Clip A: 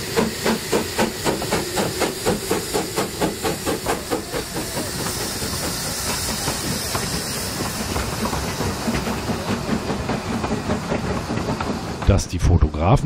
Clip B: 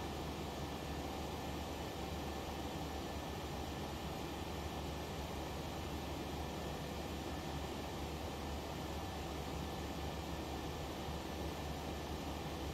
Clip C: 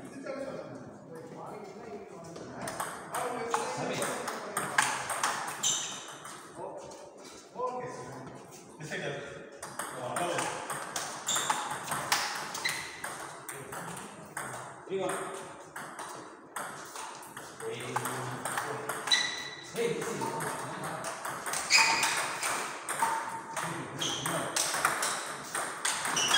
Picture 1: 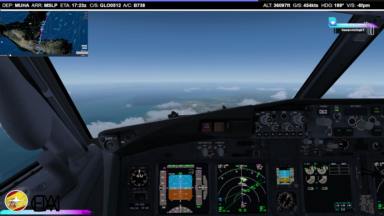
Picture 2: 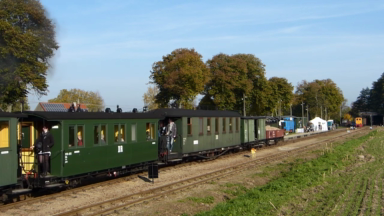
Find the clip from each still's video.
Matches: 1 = B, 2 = A